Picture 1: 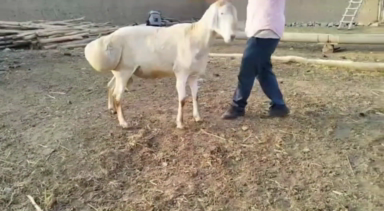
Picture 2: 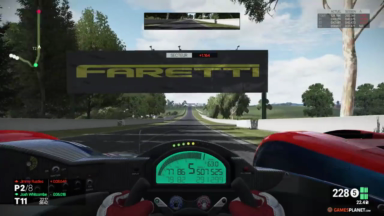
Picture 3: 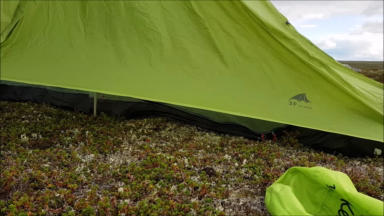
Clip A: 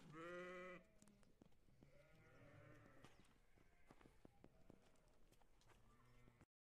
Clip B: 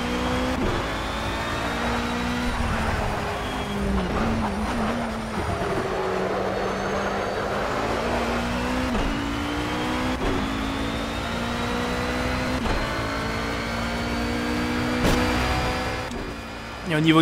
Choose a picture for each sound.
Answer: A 1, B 2